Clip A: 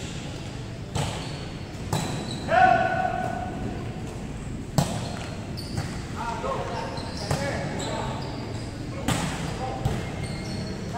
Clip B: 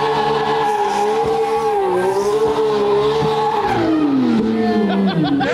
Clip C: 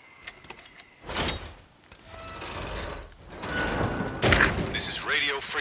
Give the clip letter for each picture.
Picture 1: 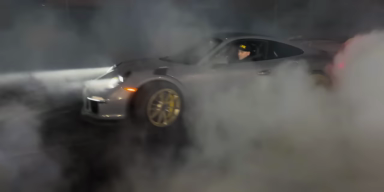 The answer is B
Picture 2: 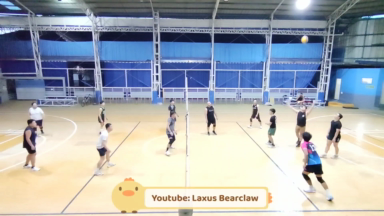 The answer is A